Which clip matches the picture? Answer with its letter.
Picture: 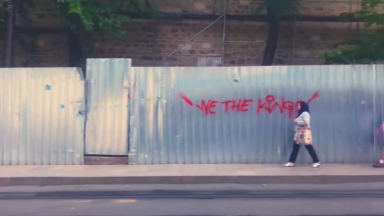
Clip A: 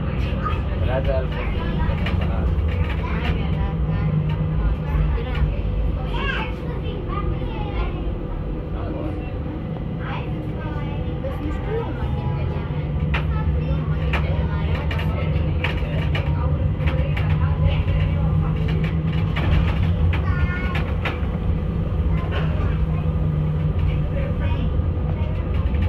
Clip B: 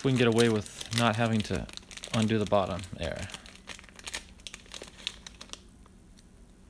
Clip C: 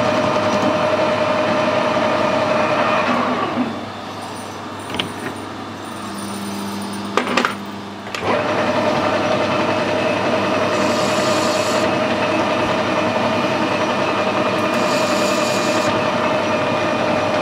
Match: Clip A